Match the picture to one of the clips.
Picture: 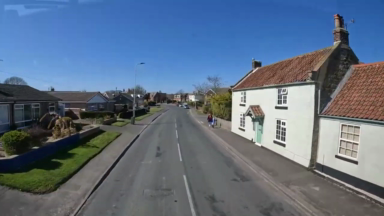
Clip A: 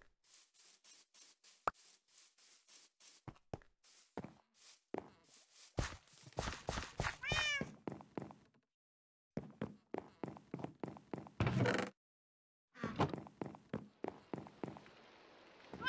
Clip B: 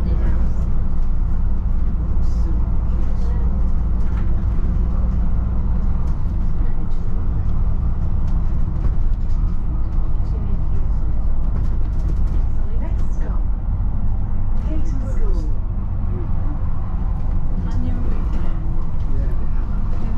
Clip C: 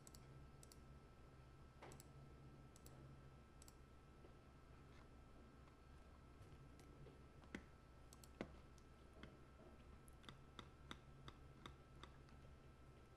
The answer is B